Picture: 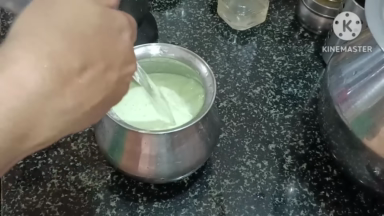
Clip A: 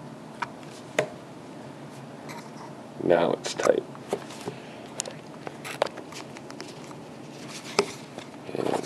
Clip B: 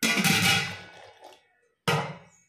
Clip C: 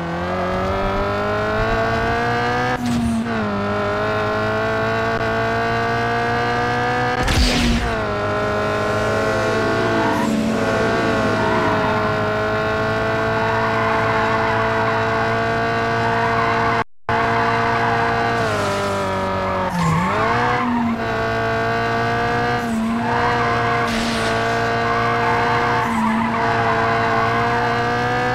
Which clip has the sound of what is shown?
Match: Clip B